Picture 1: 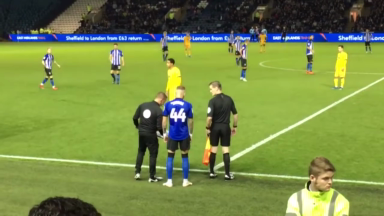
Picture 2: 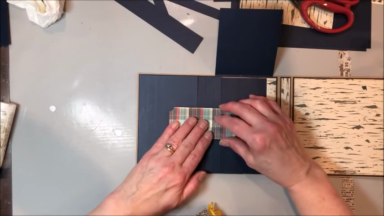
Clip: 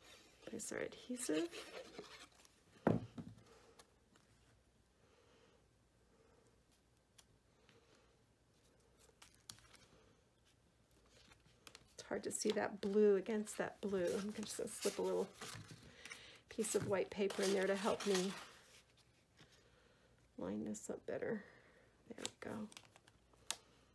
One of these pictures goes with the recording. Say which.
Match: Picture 2